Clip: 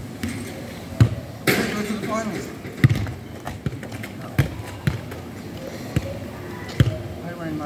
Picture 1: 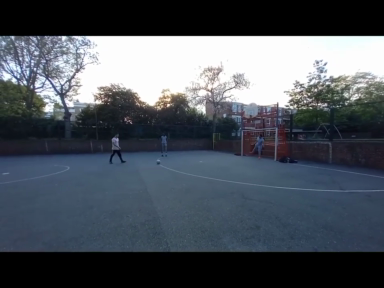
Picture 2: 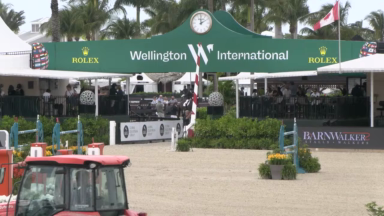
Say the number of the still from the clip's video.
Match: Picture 1